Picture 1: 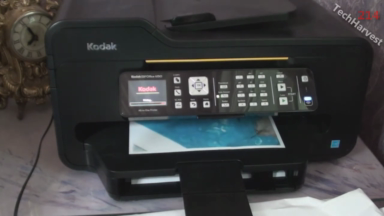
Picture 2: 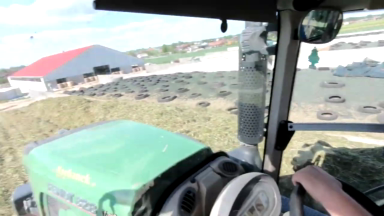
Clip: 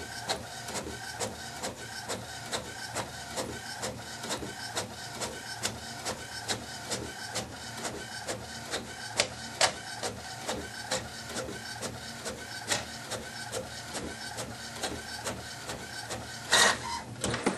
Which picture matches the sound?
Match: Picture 1